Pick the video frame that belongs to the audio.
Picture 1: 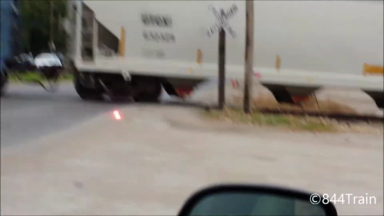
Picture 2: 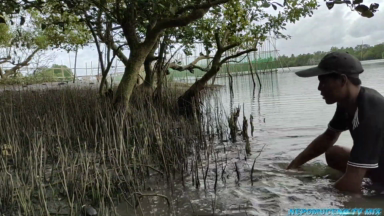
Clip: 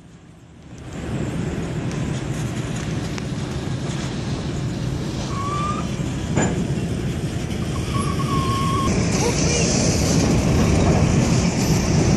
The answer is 1